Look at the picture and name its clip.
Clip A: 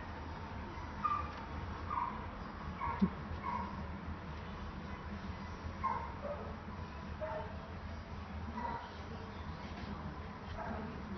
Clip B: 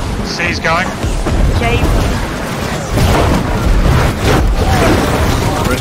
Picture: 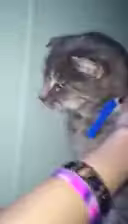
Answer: A